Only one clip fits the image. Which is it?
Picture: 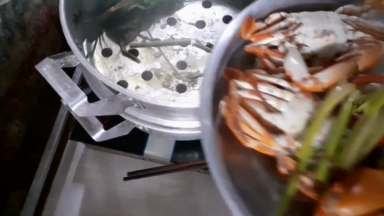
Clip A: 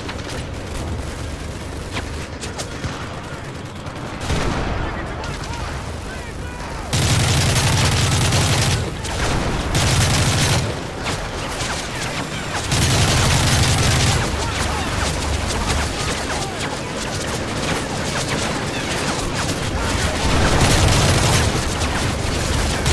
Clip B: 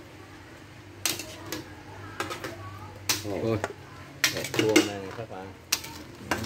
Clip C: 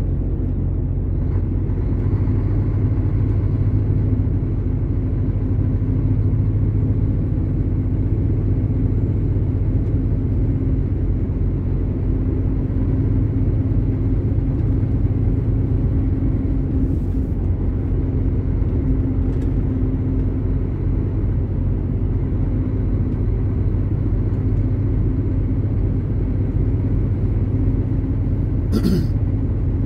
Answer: B